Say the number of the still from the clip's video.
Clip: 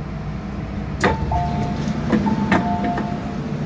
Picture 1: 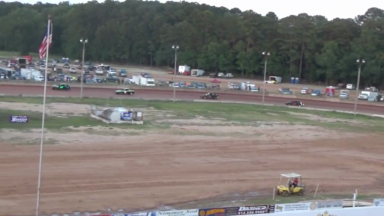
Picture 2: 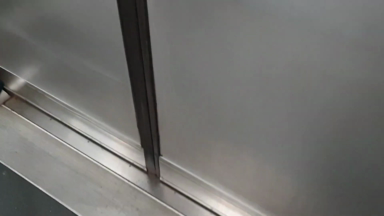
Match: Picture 2